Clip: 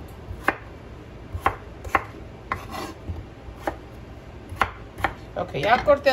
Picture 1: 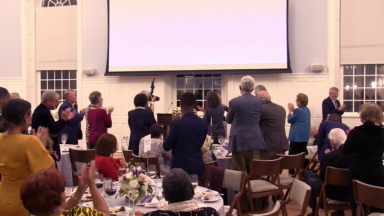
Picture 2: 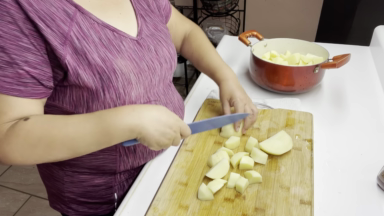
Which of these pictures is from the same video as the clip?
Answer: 2